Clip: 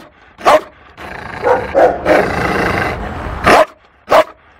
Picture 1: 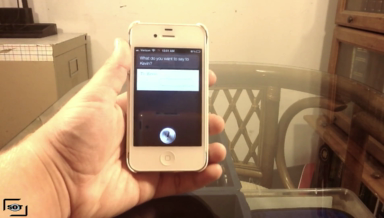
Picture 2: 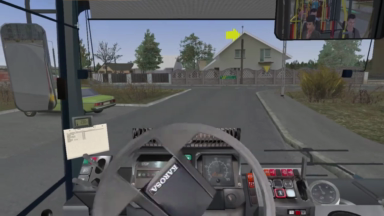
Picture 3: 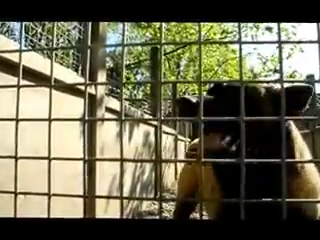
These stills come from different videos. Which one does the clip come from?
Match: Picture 3